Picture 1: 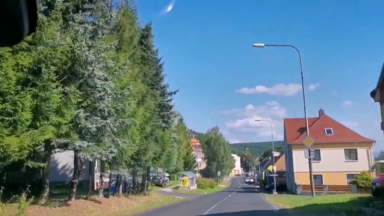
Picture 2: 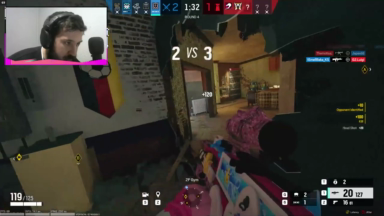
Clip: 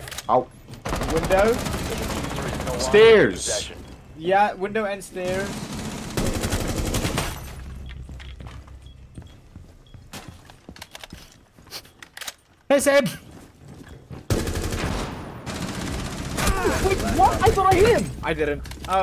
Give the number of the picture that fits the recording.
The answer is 2